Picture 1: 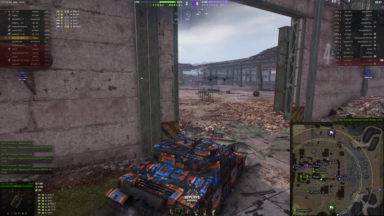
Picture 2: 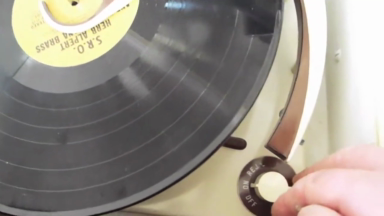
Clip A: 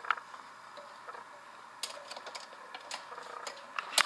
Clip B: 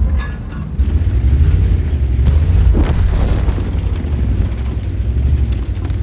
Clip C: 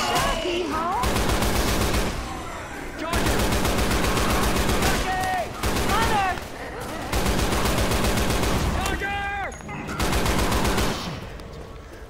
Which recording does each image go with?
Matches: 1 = B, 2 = A